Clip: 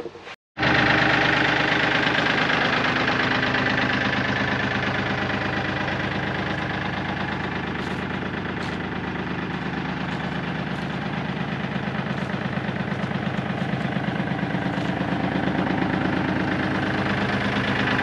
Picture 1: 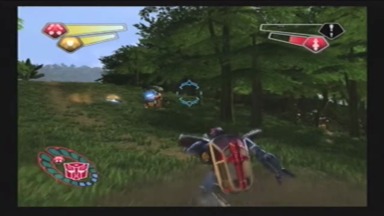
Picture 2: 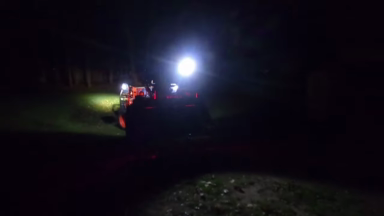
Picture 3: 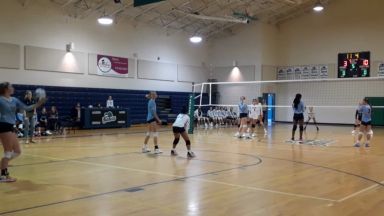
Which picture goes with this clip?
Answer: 2